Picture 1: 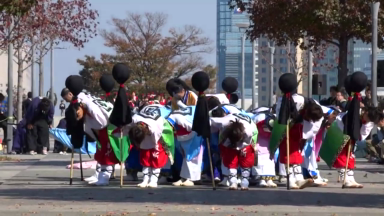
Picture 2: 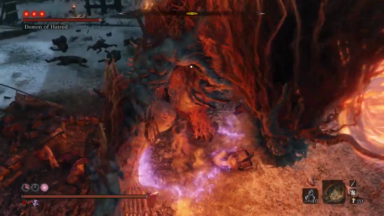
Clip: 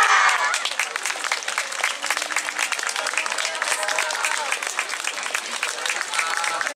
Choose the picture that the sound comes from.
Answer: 1